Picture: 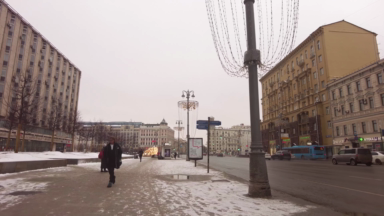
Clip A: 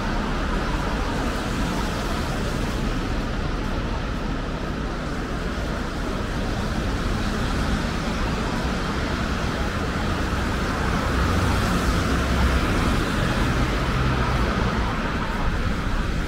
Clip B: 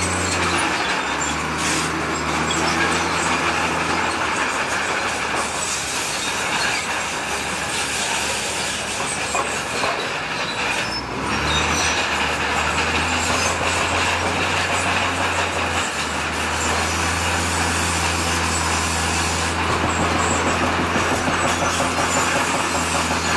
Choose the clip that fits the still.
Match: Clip A